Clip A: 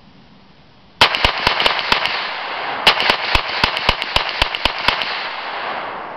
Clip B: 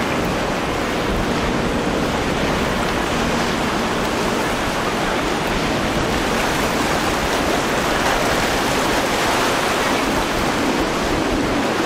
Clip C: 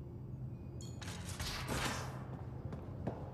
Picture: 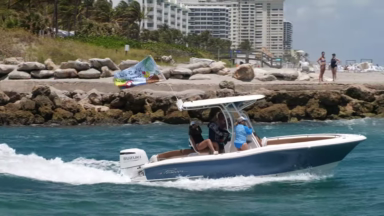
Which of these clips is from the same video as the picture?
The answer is B